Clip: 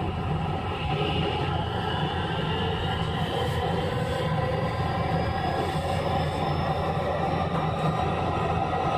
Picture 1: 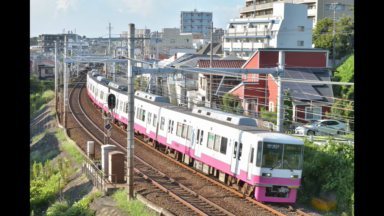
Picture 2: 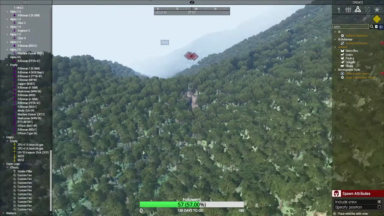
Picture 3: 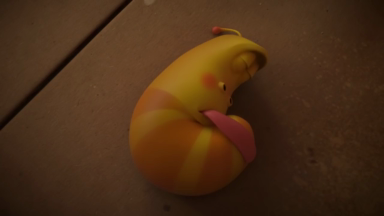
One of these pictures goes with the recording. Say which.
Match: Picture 1